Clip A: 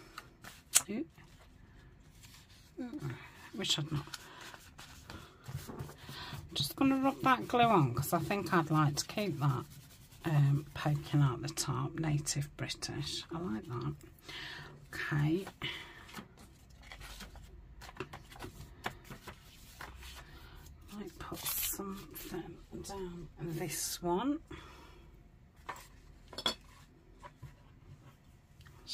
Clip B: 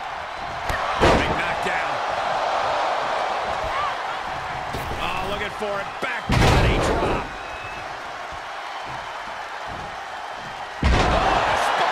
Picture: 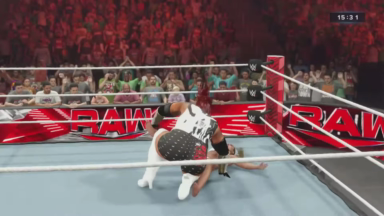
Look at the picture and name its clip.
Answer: B